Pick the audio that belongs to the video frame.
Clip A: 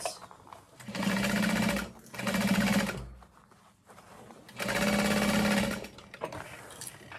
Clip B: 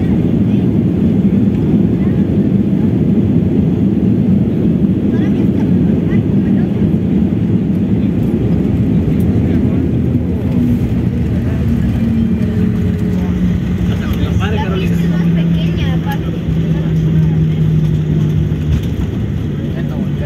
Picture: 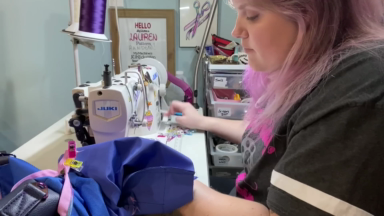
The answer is A